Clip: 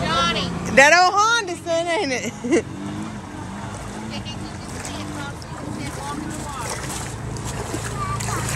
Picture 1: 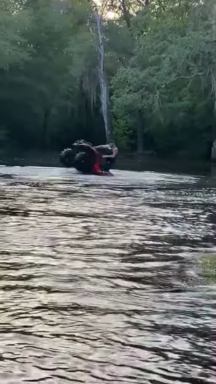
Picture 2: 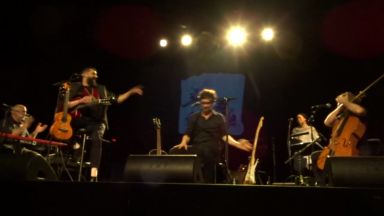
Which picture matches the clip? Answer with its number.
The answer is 1